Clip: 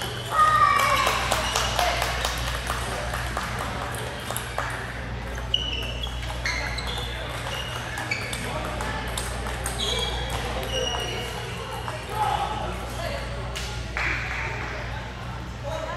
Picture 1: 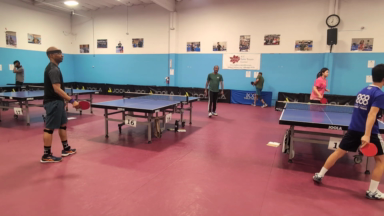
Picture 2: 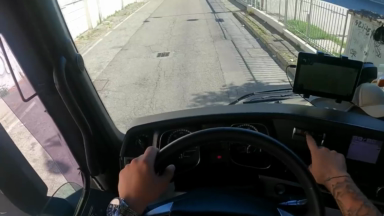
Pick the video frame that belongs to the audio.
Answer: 1